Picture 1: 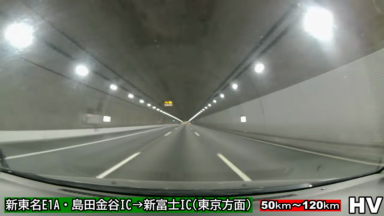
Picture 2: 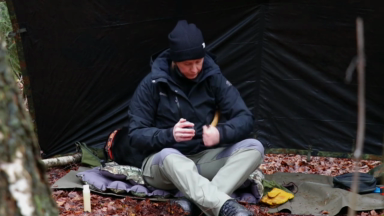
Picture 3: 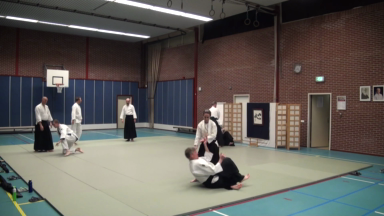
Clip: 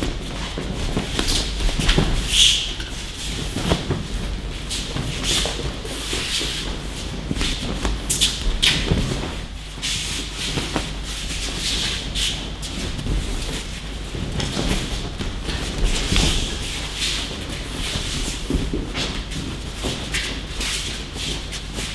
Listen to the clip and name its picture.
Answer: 3